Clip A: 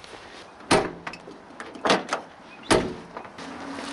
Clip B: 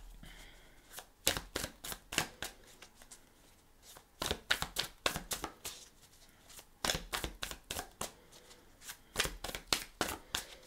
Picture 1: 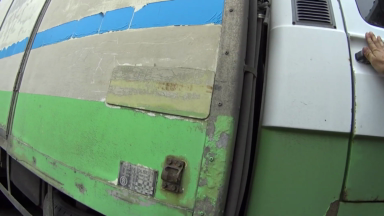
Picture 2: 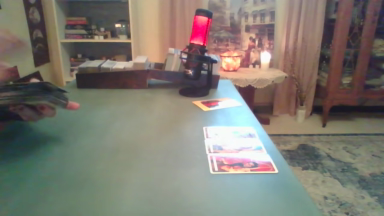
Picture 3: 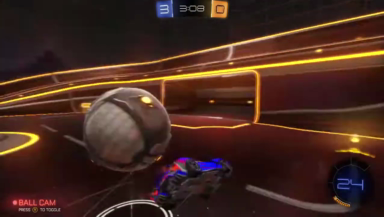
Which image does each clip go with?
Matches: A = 1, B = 2